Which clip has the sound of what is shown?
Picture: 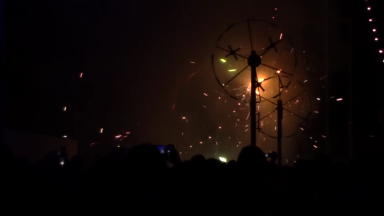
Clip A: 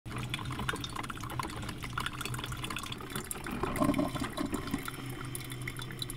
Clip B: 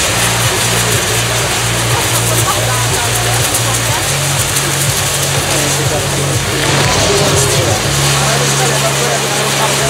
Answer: B